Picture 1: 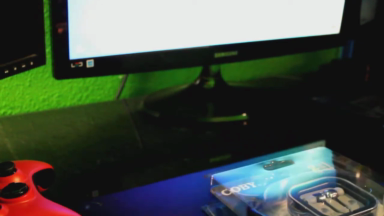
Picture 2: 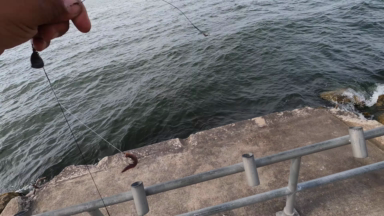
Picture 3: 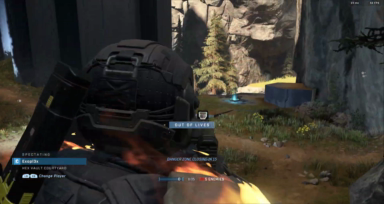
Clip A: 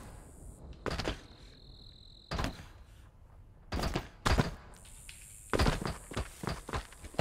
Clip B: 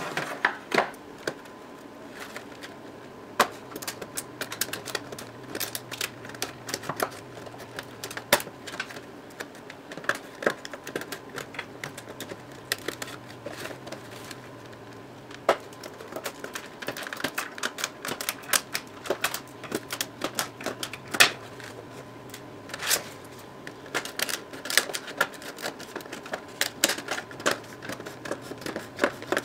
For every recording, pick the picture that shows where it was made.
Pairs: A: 3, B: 1